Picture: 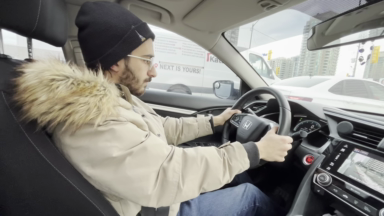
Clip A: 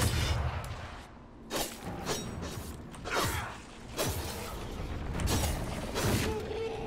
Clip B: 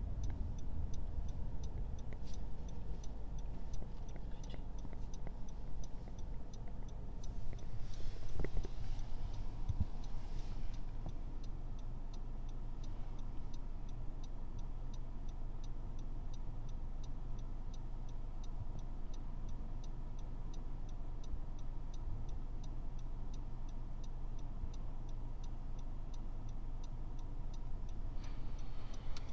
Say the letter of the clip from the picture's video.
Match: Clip B